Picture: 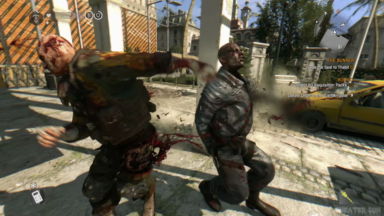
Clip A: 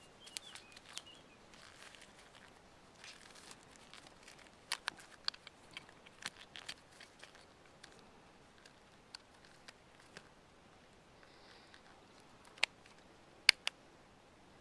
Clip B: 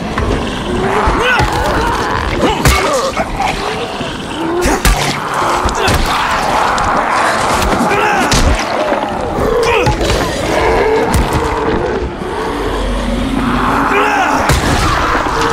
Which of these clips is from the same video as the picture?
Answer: B